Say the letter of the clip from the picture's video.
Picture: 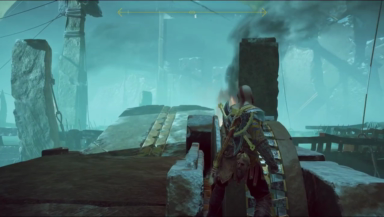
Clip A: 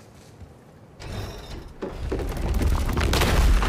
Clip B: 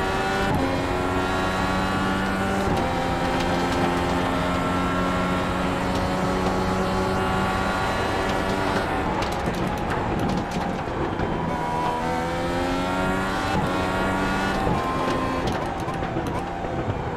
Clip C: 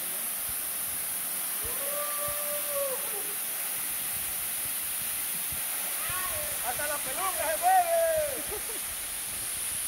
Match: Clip A